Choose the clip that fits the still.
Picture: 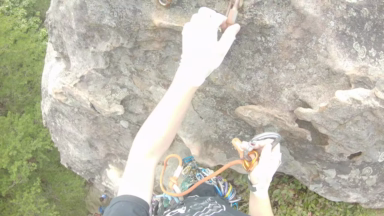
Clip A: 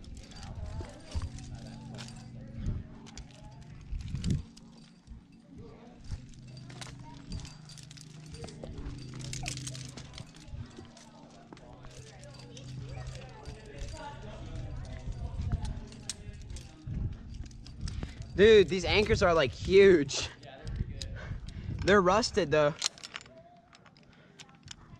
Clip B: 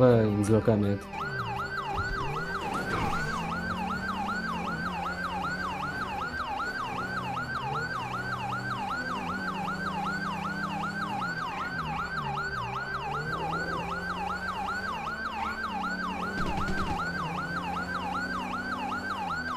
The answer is A